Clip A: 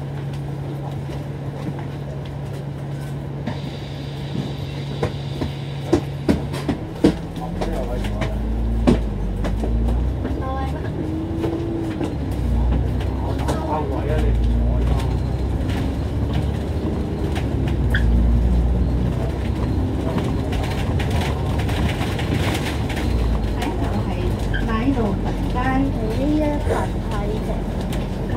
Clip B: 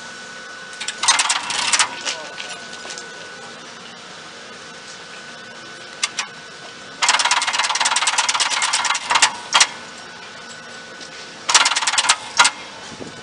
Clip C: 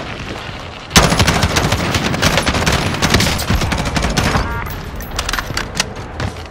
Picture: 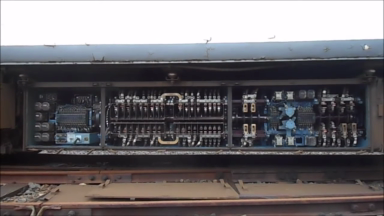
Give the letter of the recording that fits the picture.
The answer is B